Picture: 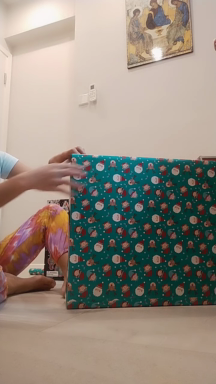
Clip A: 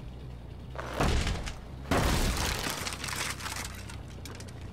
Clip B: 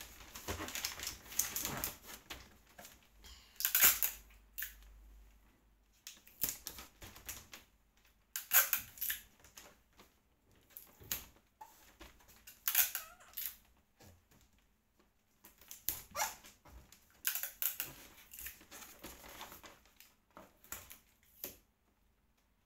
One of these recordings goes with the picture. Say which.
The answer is B